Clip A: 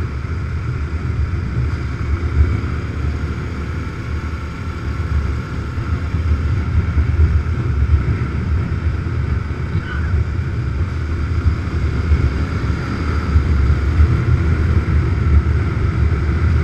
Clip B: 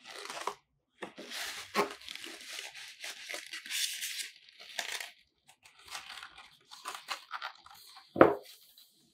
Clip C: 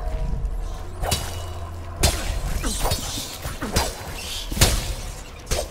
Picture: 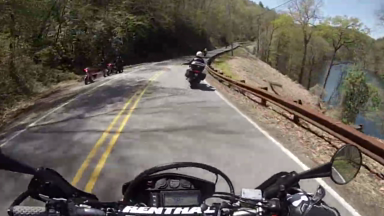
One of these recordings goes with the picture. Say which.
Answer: A